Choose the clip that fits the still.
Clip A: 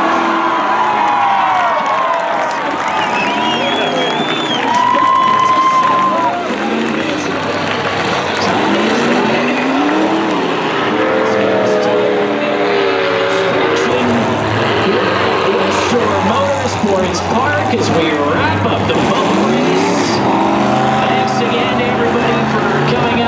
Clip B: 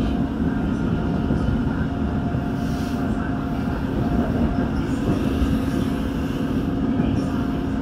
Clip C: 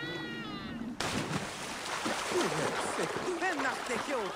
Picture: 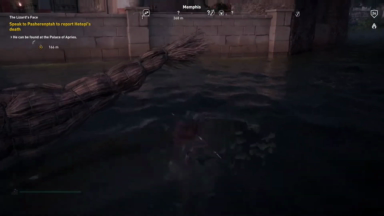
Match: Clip C